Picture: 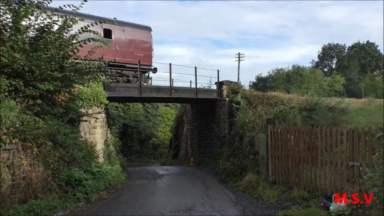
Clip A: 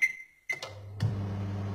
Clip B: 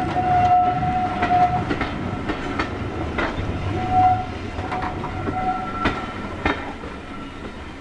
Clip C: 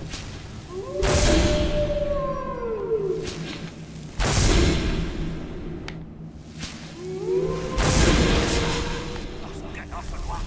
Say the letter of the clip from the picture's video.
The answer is B